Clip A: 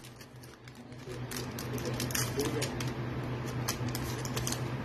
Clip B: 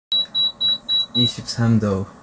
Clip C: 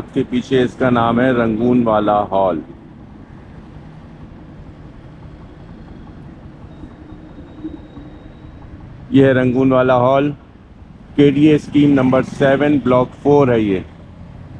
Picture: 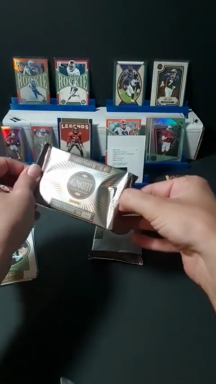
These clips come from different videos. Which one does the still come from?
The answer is A